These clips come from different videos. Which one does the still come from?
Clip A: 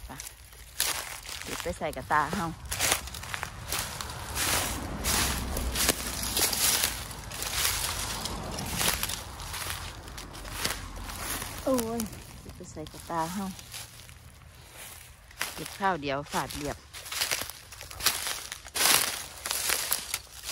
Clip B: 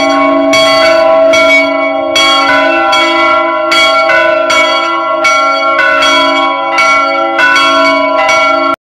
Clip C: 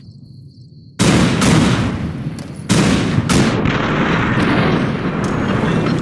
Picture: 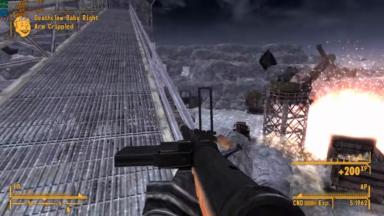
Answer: C